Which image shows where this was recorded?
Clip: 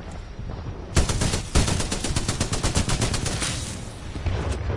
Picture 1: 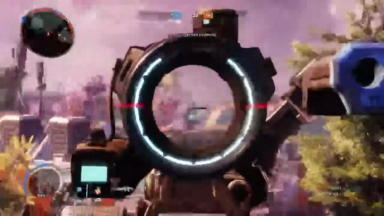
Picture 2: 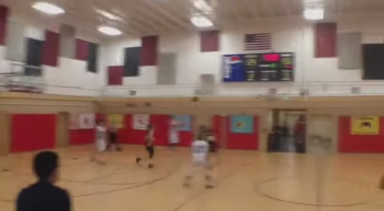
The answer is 1